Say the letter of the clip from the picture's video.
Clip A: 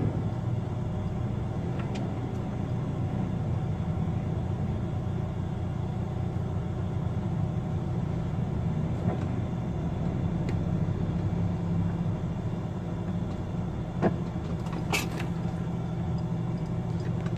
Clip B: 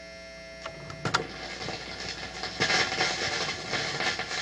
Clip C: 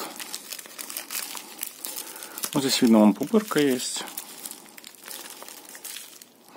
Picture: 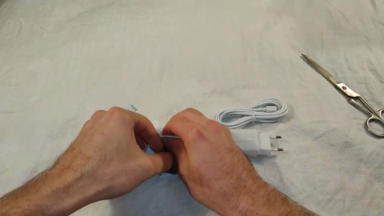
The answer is C